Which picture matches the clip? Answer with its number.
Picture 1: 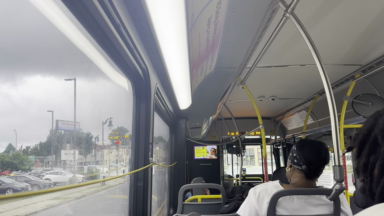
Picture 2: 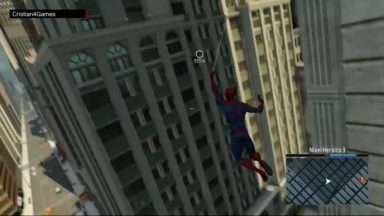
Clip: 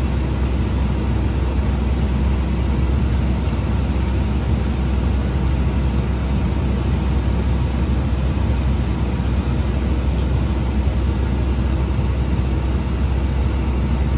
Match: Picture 1